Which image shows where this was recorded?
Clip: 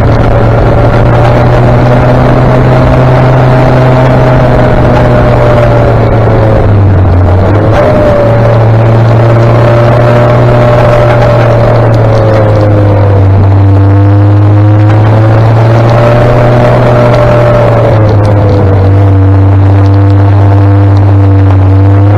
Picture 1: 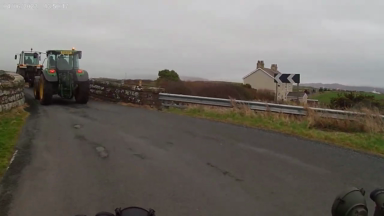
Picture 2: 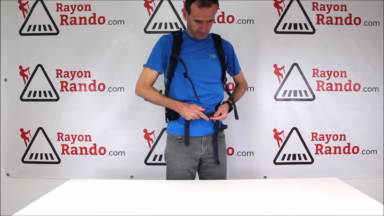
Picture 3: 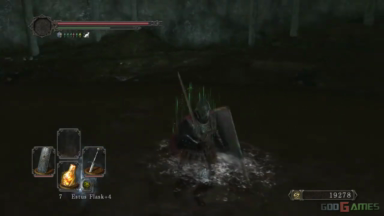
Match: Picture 1